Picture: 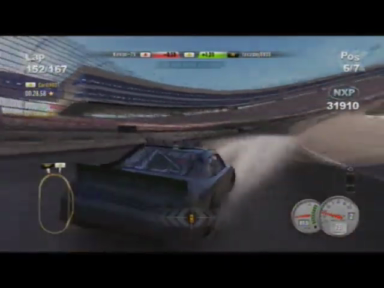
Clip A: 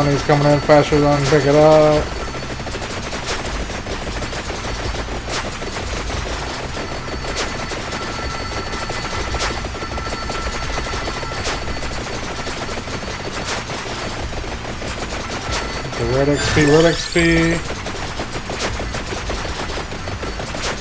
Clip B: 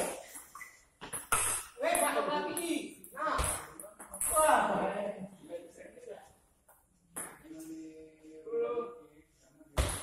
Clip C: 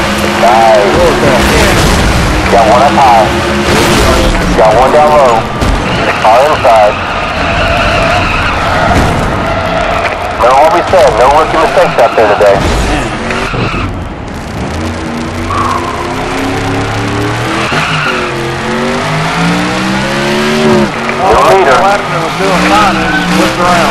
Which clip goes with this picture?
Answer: C